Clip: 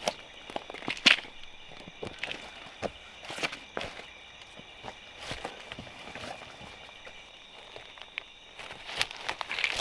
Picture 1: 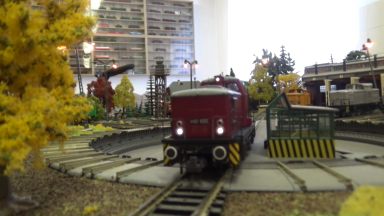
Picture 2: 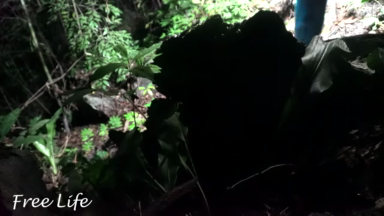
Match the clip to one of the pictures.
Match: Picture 2